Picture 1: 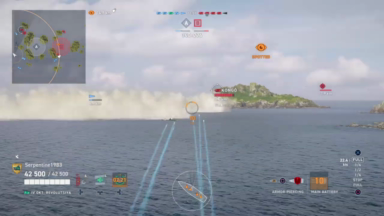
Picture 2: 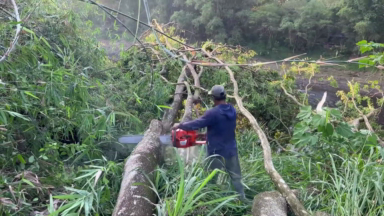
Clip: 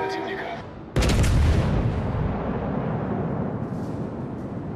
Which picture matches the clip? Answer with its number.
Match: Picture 1